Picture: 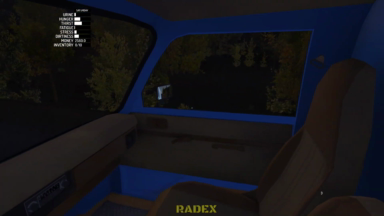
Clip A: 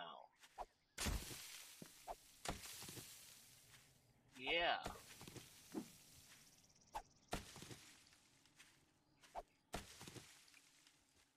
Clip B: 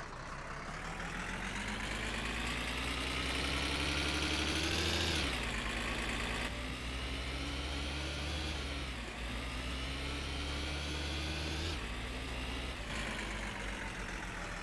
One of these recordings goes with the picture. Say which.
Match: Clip B